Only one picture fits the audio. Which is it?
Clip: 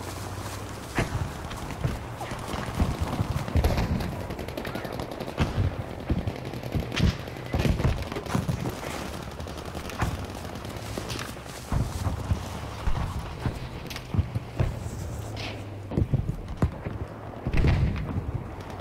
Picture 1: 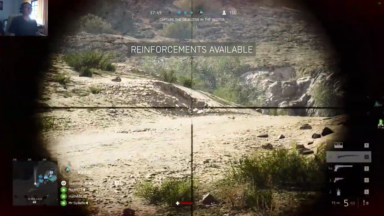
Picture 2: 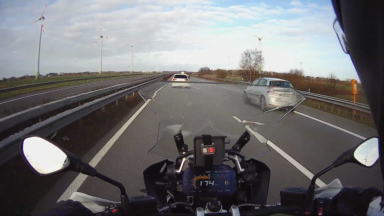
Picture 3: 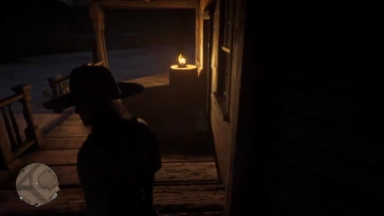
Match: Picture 1